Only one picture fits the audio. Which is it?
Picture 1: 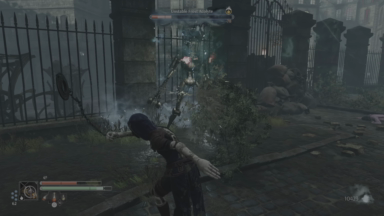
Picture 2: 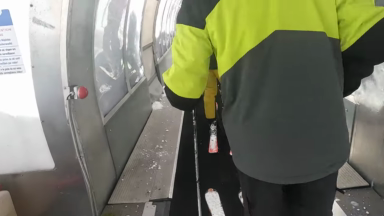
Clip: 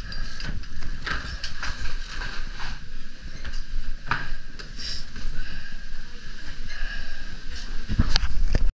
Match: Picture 2